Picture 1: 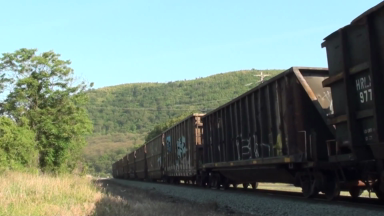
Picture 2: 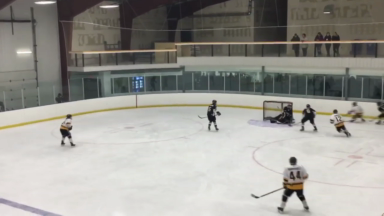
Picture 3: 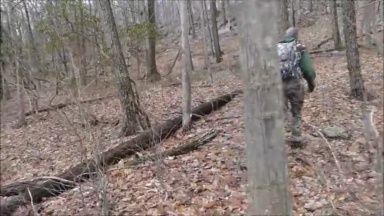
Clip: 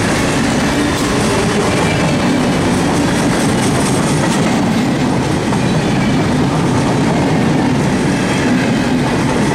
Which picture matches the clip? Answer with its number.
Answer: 1